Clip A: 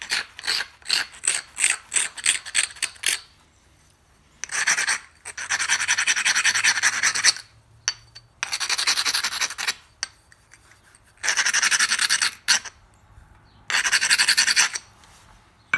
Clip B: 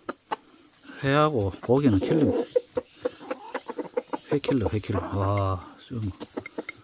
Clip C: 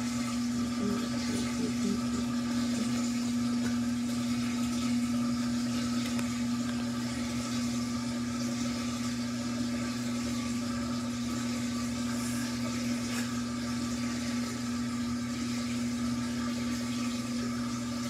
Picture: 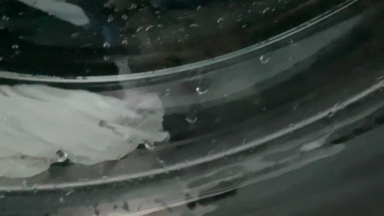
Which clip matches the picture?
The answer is C